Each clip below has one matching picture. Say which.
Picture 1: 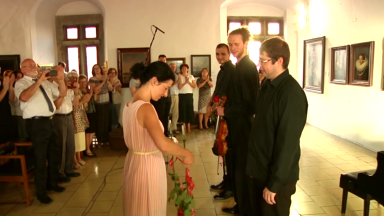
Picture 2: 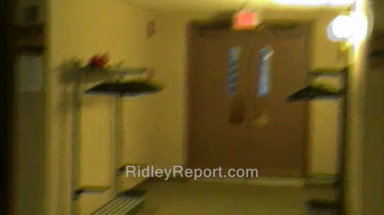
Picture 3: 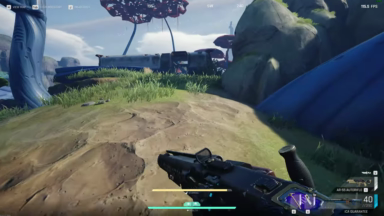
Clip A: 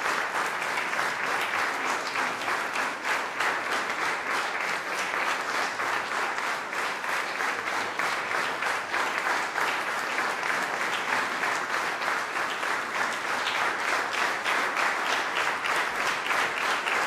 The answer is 1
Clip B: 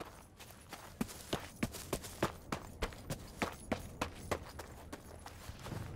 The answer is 3